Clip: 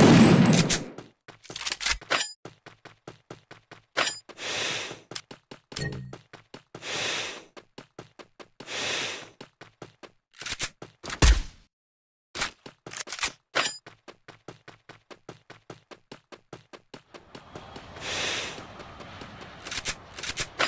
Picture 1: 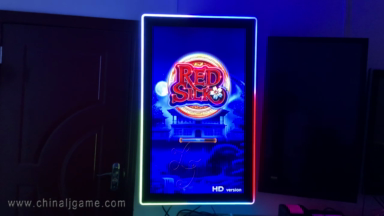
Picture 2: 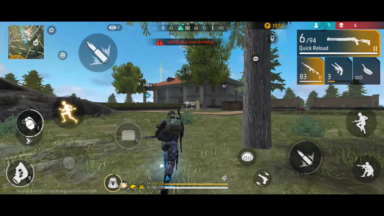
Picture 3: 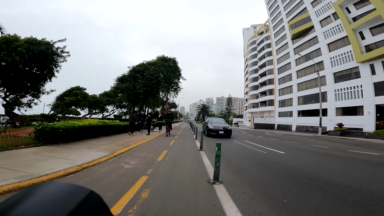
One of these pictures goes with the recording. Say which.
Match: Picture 2